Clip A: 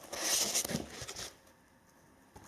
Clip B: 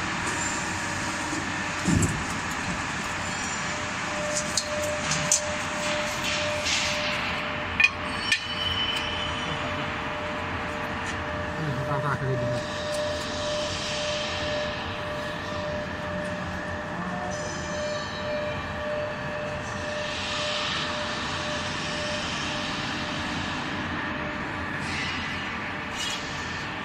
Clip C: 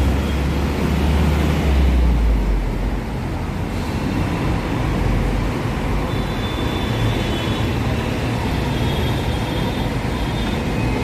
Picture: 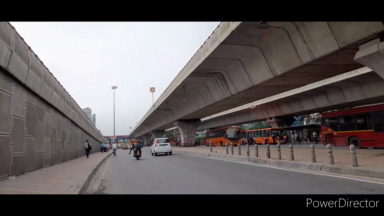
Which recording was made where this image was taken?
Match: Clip C